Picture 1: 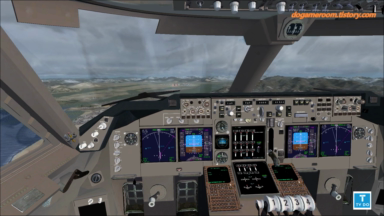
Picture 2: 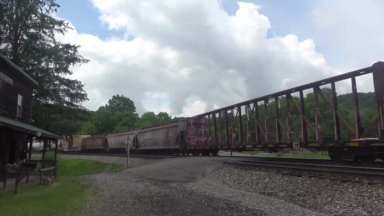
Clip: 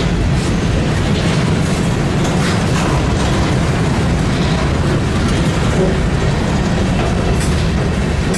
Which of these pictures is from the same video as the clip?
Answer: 2